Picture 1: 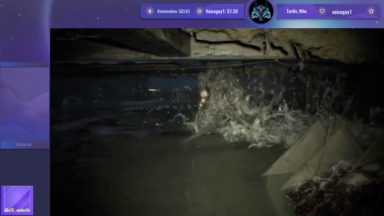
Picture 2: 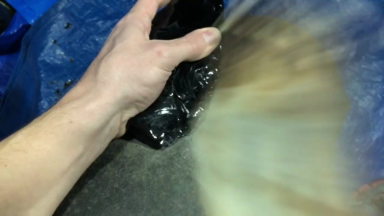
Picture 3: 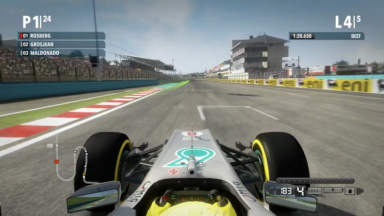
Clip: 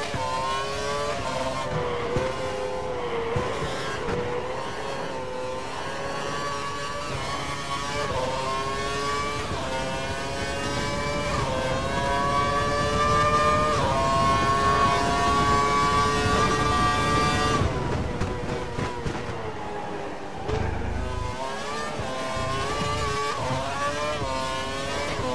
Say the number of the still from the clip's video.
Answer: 3